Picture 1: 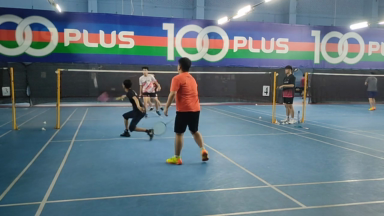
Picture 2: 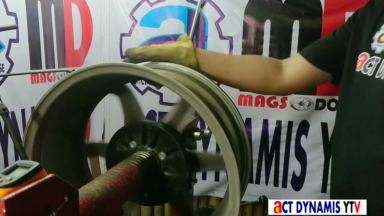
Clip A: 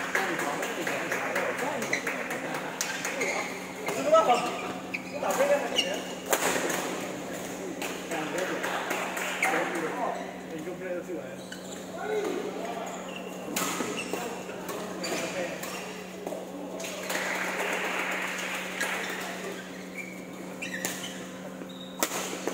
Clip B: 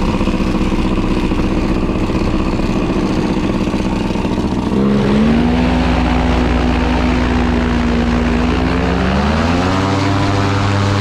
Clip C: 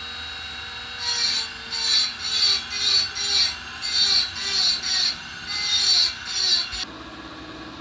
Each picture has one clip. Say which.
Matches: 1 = A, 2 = C